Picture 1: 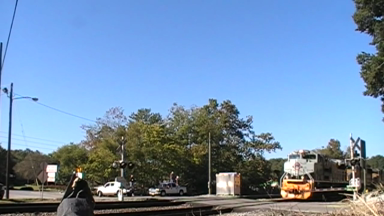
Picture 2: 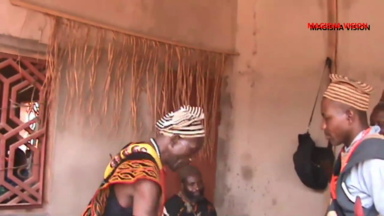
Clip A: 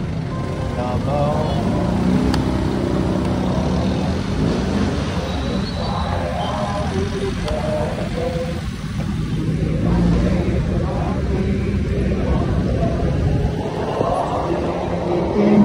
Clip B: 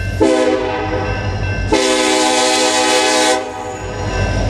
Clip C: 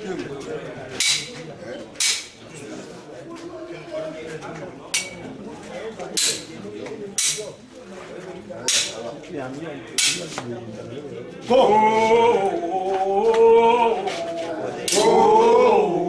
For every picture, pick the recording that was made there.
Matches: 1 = B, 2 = C